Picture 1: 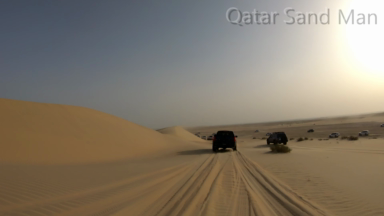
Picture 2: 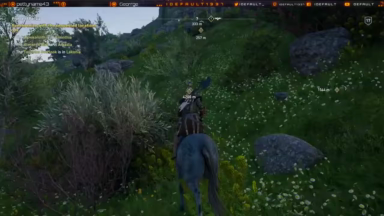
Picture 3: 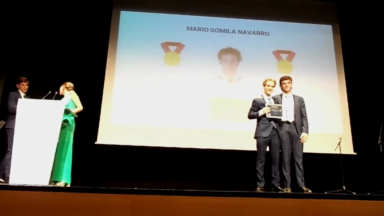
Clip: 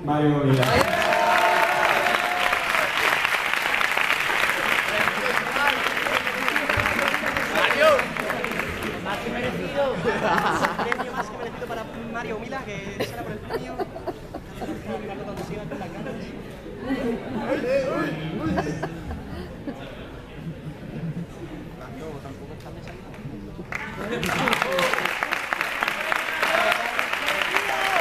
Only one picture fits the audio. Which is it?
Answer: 3